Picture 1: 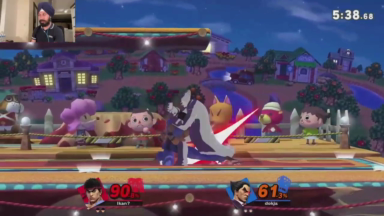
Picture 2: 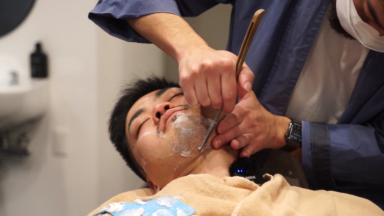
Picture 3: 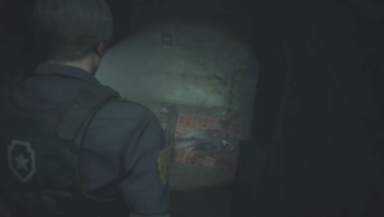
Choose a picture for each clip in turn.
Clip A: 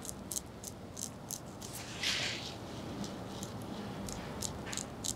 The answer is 2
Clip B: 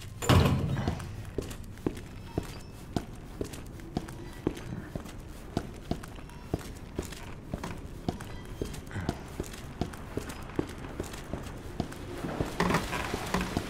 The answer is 3